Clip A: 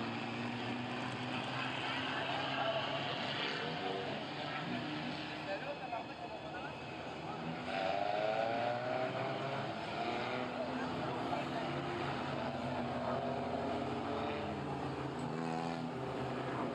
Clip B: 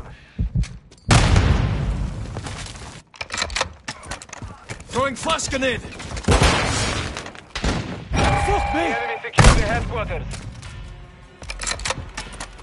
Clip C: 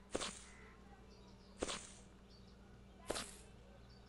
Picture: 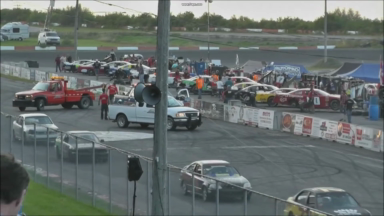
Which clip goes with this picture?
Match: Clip A